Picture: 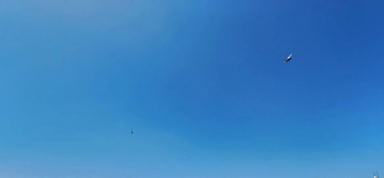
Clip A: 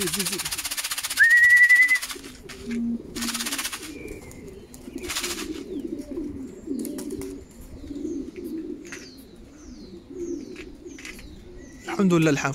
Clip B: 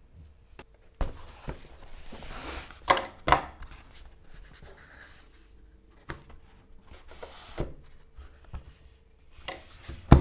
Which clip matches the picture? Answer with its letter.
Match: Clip A